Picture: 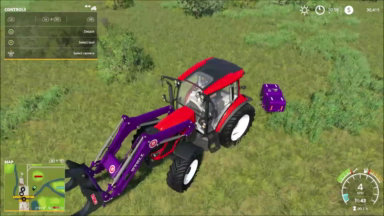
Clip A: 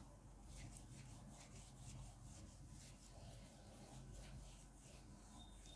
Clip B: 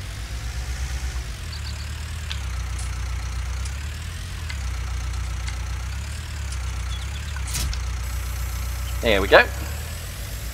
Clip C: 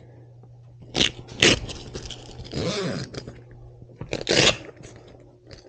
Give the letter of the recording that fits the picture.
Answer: B